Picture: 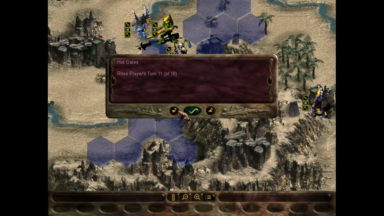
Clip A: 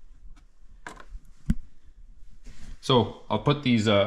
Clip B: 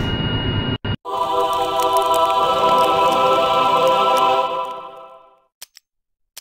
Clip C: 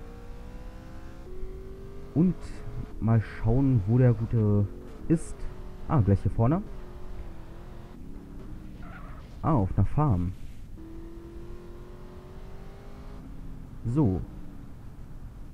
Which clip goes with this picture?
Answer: B